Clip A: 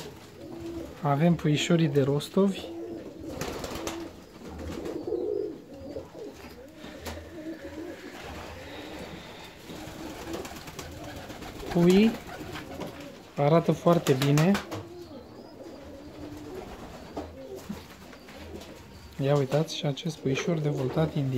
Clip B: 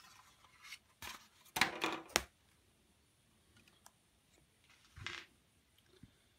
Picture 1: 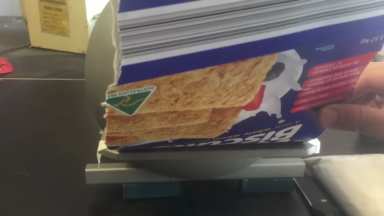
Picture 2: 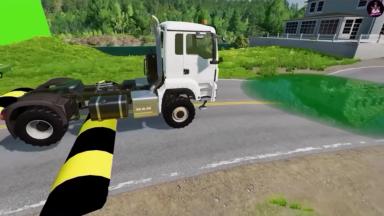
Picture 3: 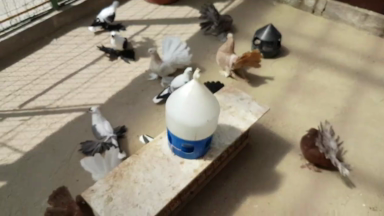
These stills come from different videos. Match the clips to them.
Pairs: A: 3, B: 1